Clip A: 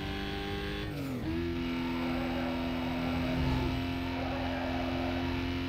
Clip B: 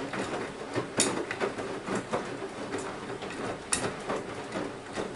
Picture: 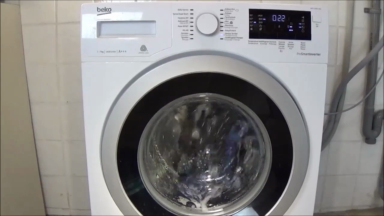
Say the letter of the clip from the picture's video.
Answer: B